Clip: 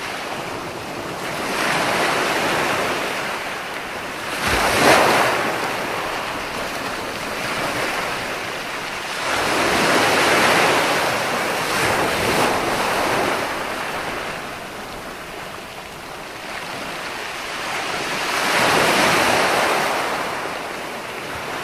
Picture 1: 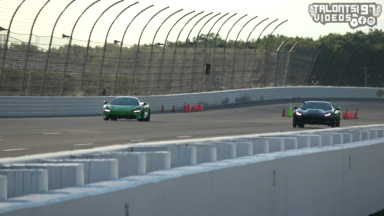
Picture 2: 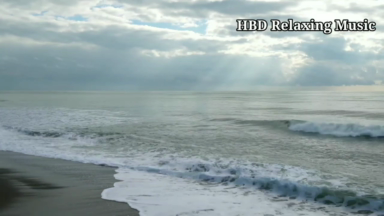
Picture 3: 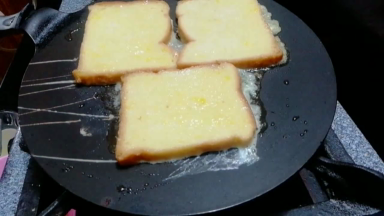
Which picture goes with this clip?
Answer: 2